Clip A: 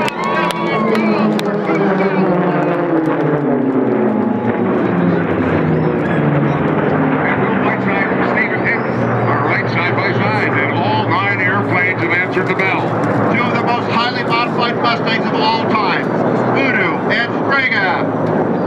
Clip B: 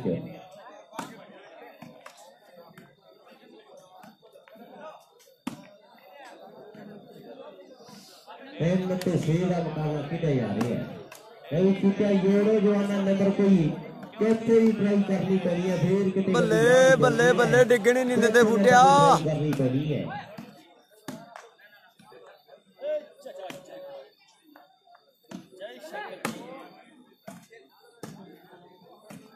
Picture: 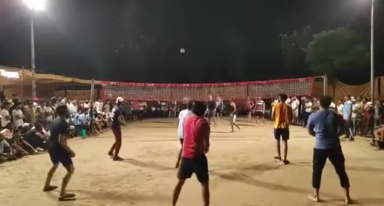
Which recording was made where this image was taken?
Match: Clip B